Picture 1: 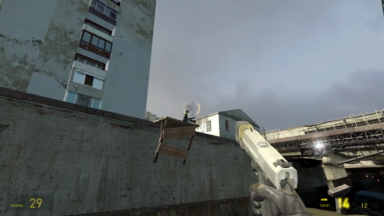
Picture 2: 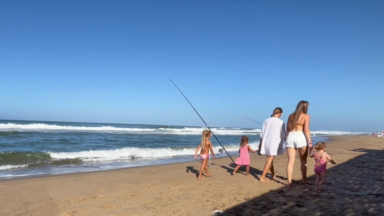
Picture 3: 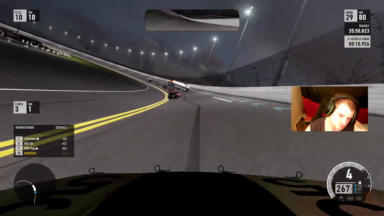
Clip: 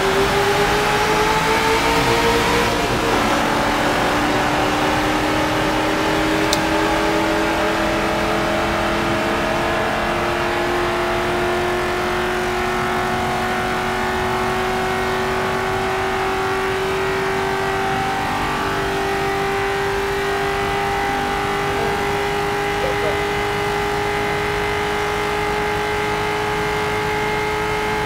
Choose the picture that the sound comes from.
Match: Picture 3